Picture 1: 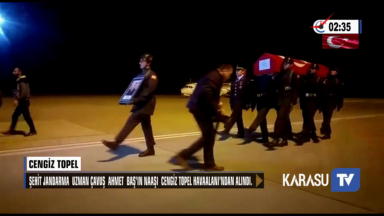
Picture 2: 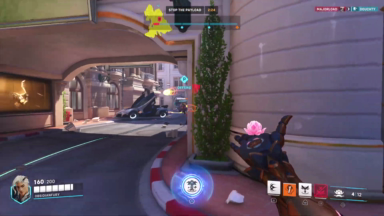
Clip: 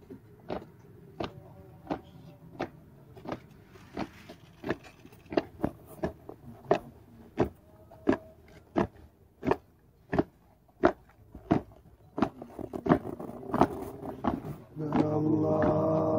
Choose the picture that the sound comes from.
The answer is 1